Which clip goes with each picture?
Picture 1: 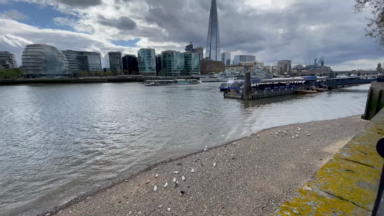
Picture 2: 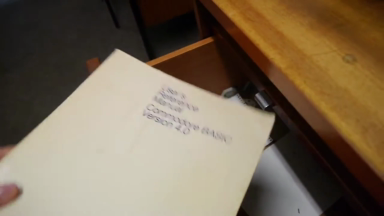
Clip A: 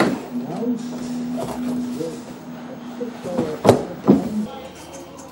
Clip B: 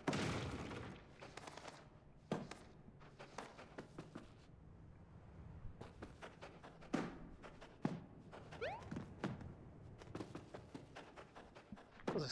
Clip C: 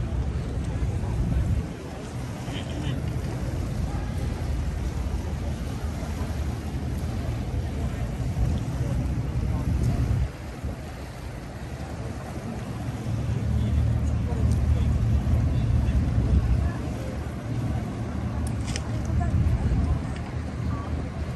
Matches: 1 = C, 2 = A